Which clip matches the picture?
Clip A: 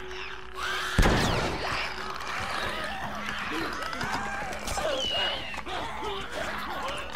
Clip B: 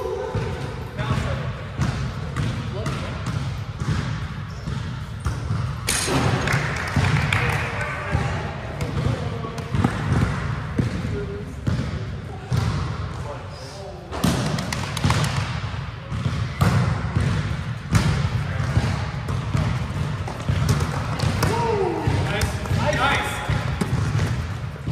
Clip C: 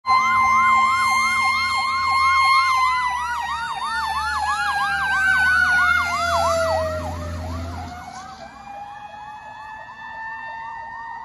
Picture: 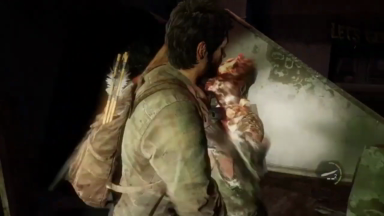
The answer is A